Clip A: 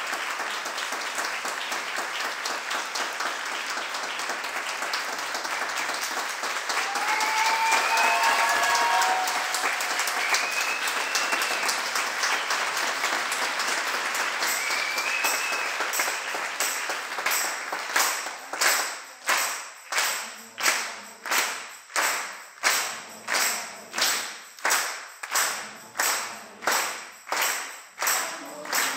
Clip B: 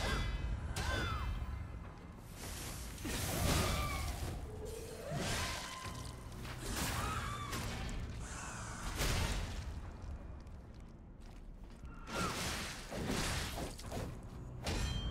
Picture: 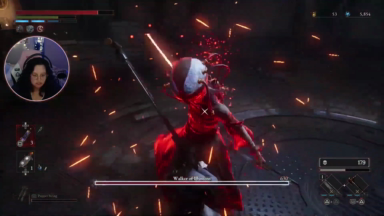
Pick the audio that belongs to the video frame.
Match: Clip B